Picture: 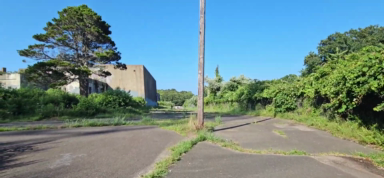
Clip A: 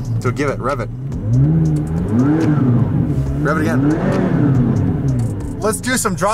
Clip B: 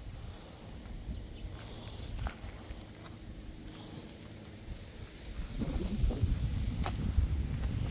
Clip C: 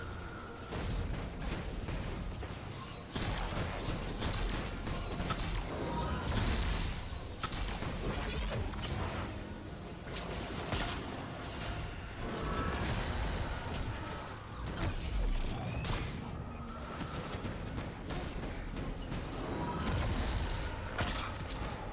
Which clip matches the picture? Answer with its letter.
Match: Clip B